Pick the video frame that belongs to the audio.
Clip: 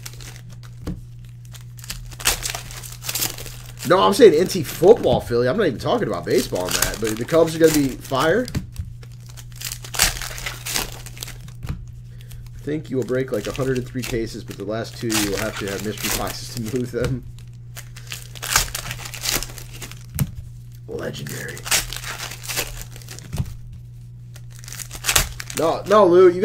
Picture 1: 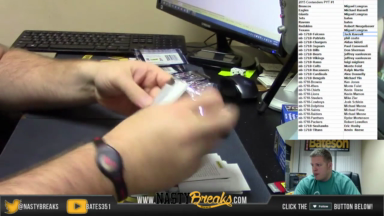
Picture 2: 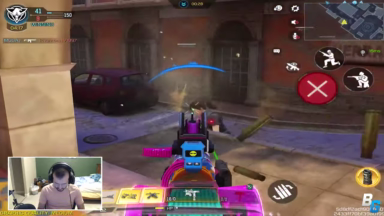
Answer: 1